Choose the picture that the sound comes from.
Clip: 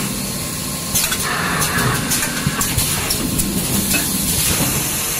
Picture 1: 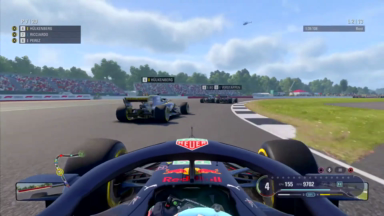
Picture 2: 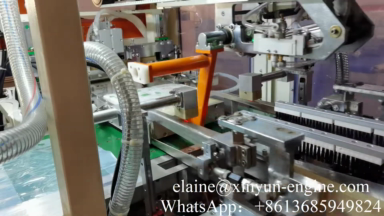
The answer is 2